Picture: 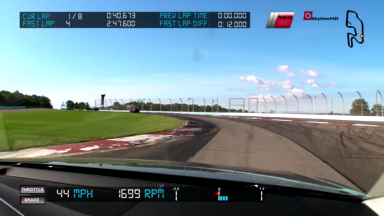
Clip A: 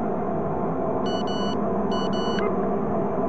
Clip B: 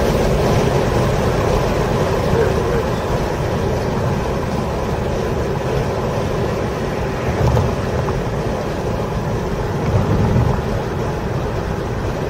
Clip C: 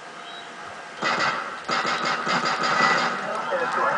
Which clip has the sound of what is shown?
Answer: B